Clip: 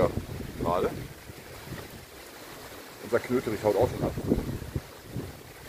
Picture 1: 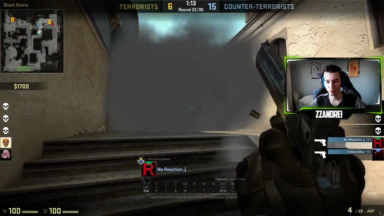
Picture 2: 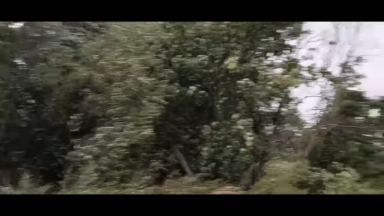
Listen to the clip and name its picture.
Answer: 2